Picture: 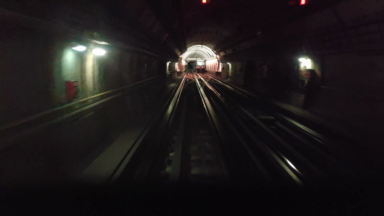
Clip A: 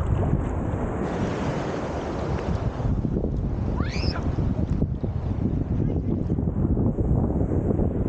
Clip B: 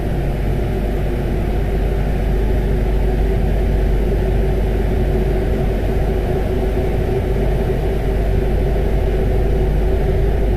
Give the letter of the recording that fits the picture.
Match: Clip B